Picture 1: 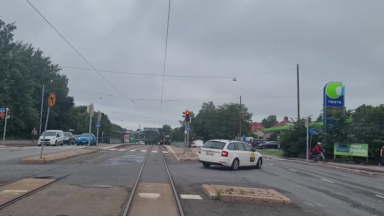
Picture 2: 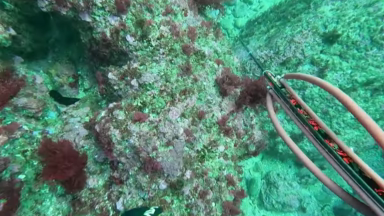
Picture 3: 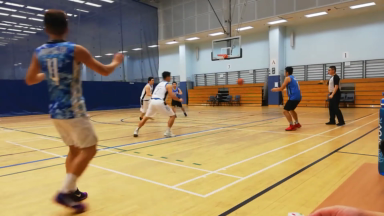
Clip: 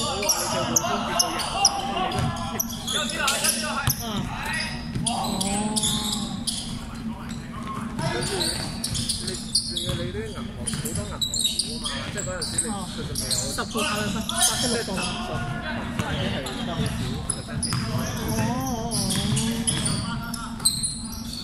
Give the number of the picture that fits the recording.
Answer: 3